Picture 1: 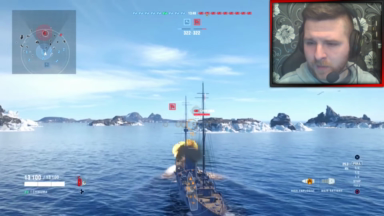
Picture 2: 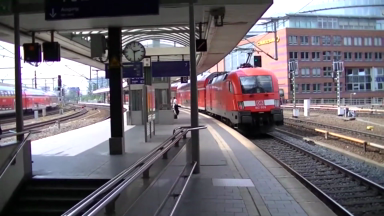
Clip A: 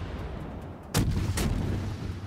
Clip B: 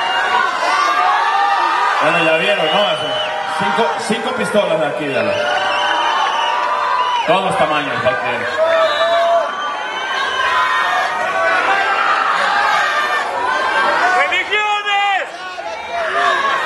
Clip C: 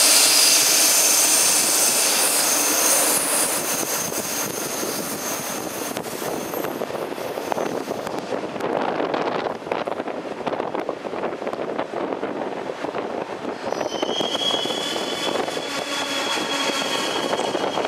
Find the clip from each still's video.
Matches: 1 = A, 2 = C